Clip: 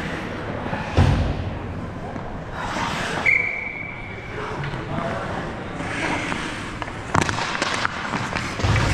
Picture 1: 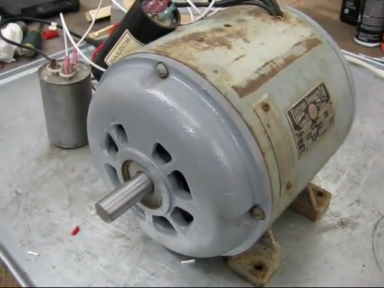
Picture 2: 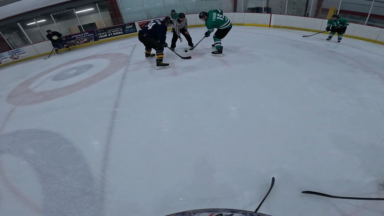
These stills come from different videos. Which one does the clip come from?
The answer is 2